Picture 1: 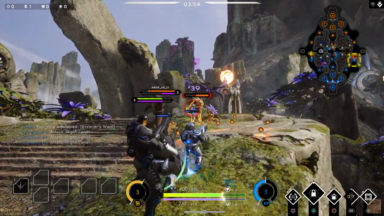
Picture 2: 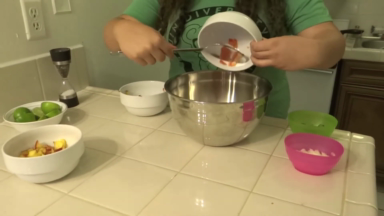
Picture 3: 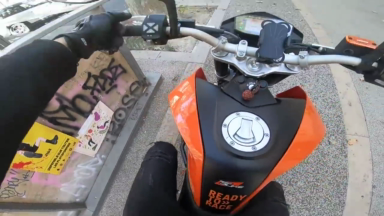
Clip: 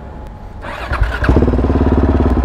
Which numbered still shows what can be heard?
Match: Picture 3